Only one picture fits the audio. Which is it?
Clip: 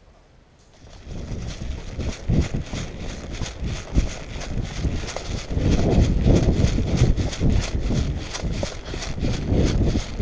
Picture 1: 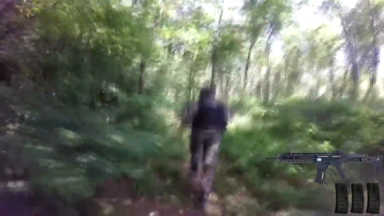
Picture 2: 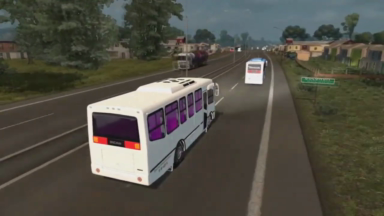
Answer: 1